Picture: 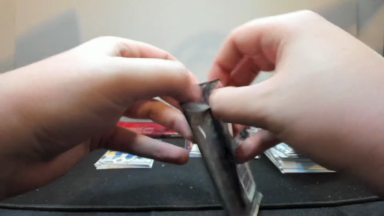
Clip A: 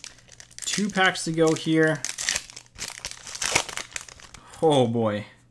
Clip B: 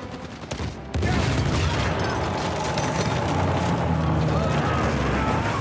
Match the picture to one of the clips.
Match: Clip A